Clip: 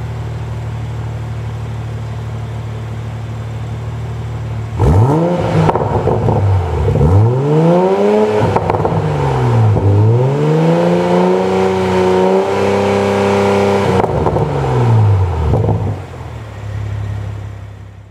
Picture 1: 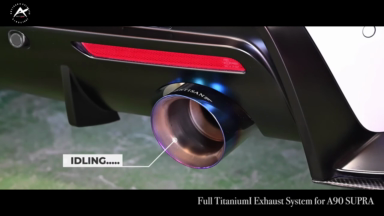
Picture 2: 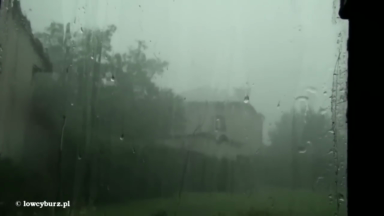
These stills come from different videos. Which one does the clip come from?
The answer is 1